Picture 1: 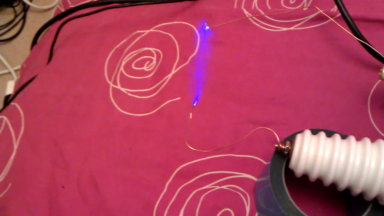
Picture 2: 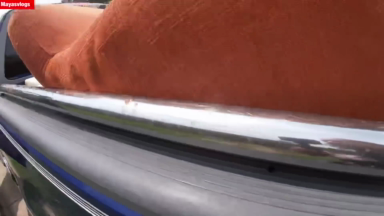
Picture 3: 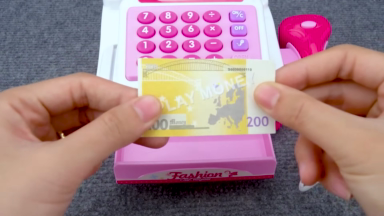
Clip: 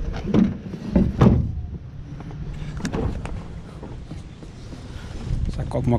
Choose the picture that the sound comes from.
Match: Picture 2